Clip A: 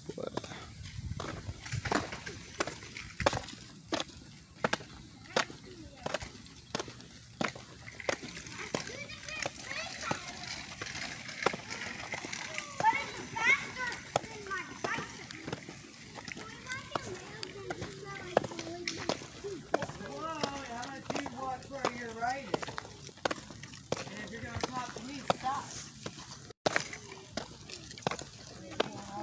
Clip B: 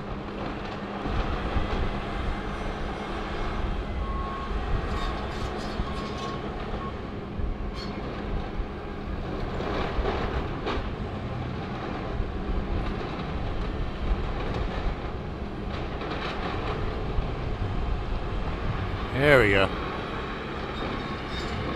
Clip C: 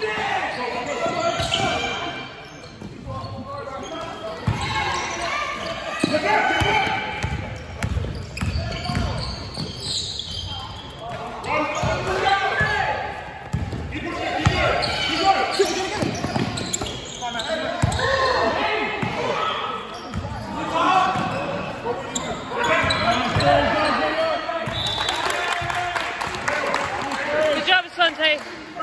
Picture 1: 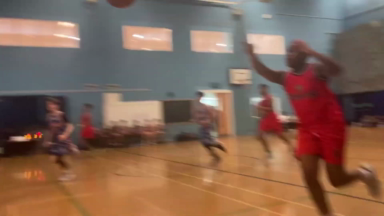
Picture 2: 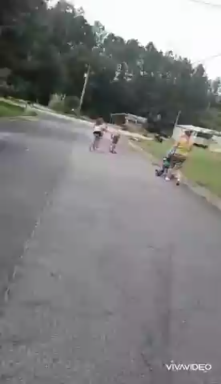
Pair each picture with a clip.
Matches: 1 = C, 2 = A